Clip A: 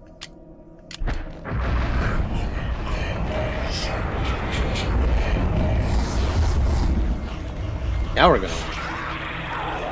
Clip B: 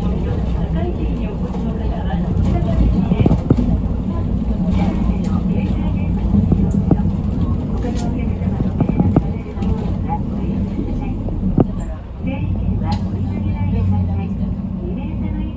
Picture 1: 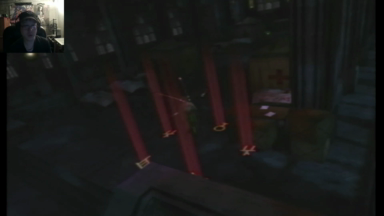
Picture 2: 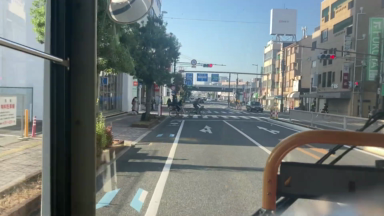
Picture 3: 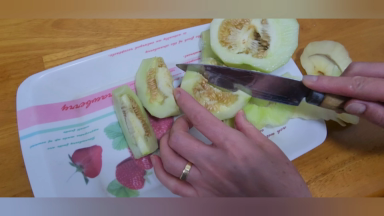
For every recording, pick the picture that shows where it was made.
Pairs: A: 1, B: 2